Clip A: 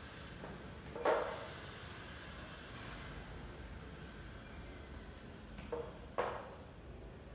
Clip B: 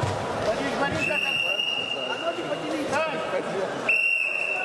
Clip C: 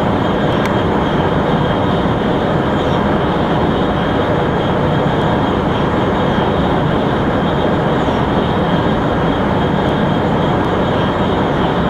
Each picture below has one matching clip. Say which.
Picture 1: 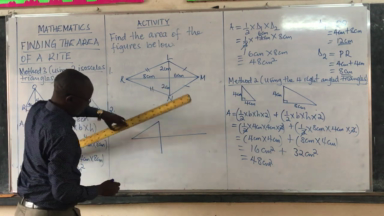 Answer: A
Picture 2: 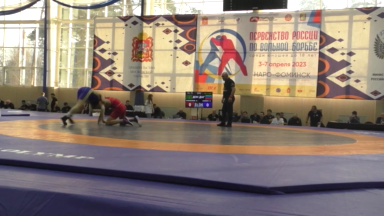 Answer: B